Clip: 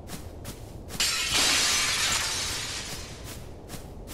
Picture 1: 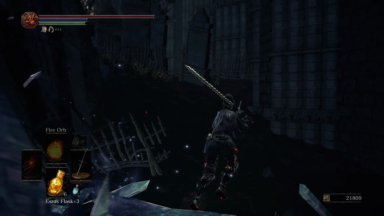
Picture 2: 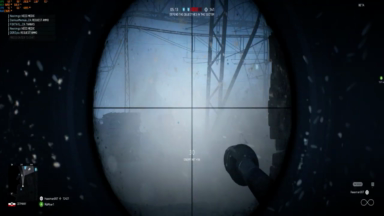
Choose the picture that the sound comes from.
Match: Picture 1